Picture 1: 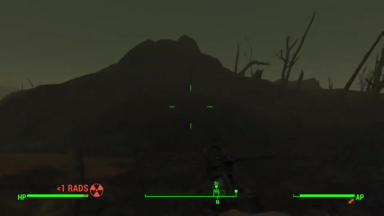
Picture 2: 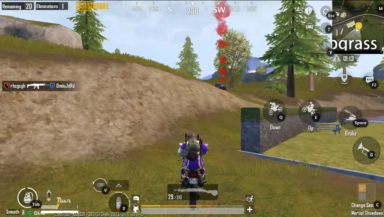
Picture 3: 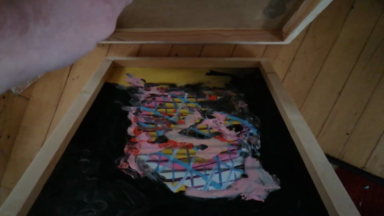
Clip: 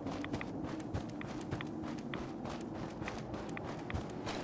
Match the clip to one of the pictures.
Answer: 1